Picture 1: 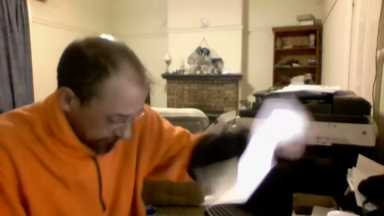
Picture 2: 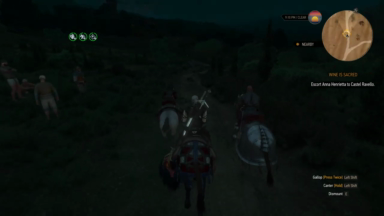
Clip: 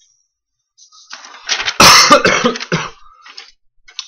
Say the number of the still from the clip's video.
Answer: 1